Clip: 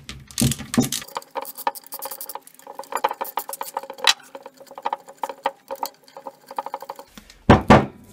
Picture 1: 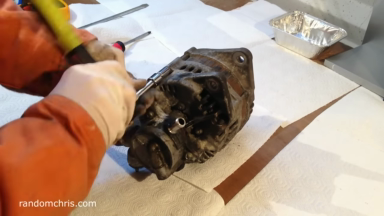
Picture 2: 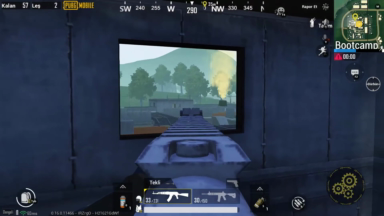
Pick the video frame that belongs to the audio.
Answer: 1